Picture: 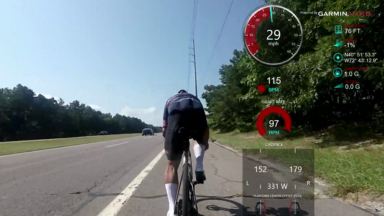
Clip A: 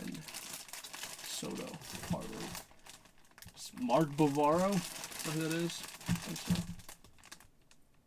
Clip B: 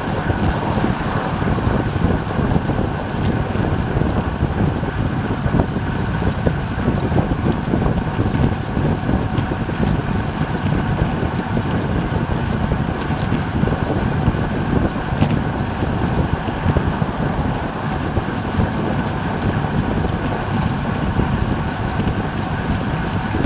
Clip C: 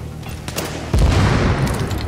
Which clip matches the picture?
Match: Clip B